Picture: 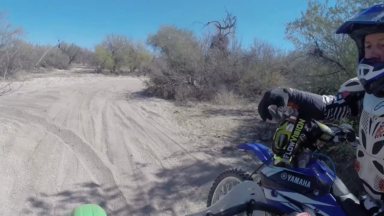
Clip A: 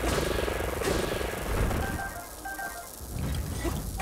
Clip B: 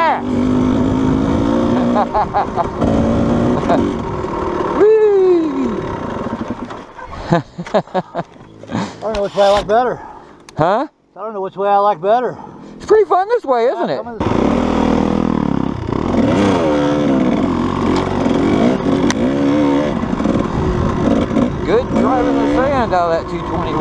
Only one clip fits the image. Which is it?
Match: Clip B